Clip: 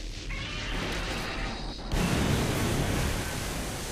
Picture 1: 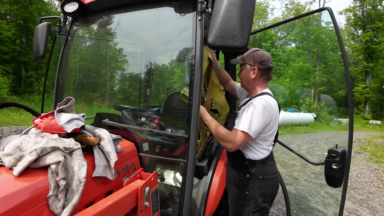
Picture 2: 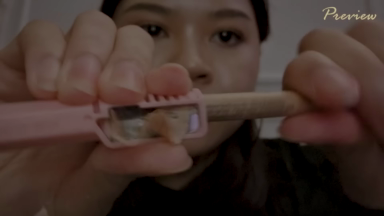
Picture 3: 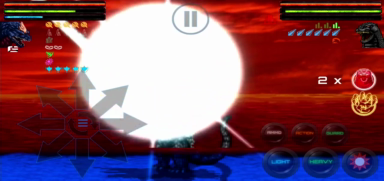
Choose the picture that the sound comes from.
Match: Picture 3